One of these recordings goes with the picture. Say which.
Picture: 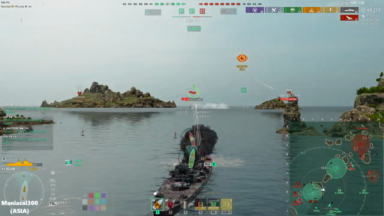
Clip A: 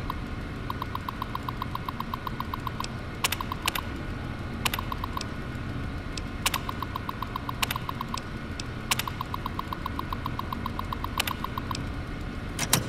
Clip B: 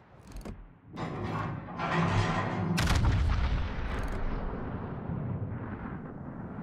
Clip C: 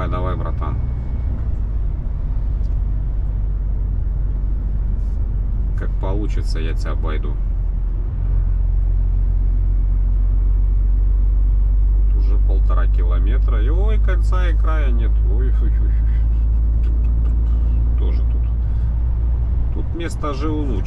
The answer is B